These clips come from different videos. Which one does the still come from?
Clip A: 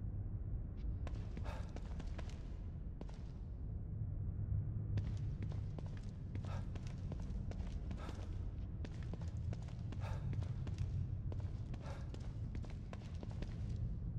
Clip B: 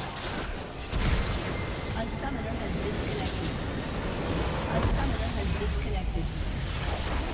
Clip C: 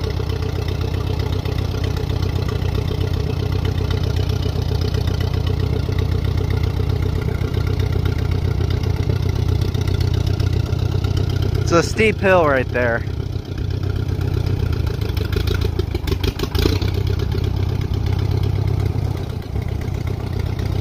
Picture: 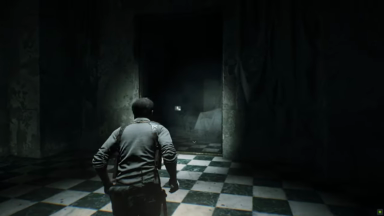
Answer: A